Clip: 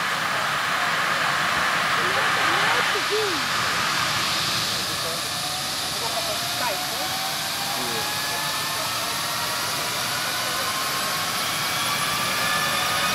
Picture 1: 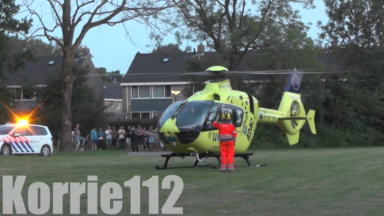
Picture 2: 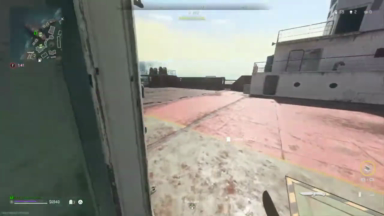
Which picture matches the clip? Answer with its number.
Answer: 1